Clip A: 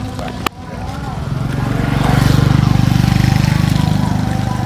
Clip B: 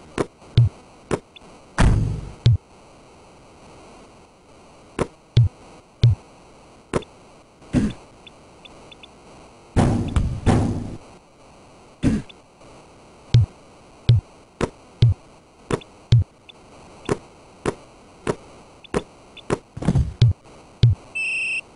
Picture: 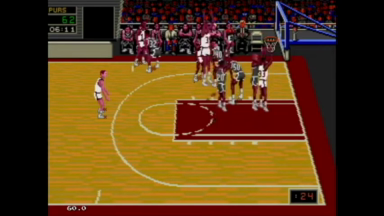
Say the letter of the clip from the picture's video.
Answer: B